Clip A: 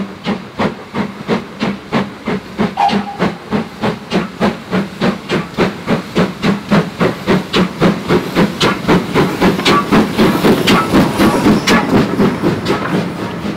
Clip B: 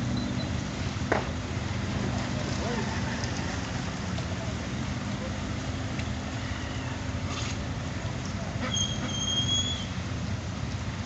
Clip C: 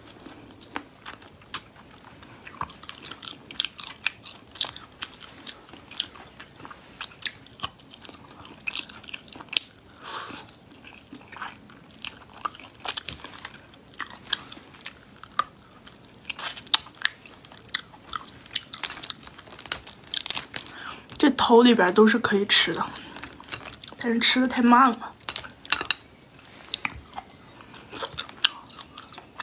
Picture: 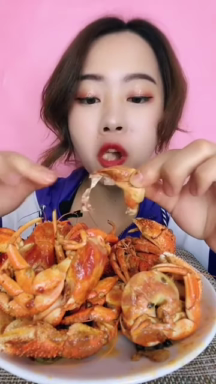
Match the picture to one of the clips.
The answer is C